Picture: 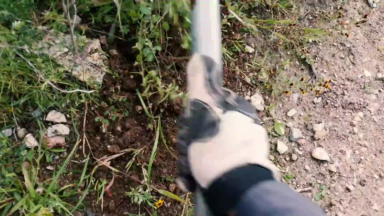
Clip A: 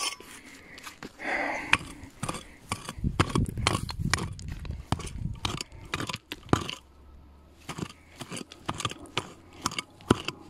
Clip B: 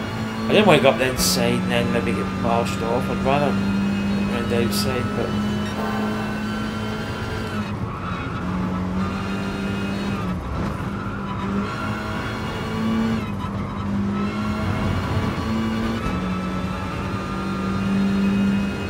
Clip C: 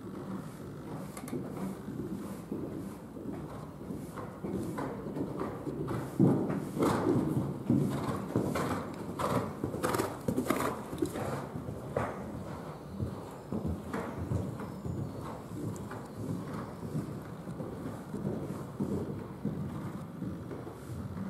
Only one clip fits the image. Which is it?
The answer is A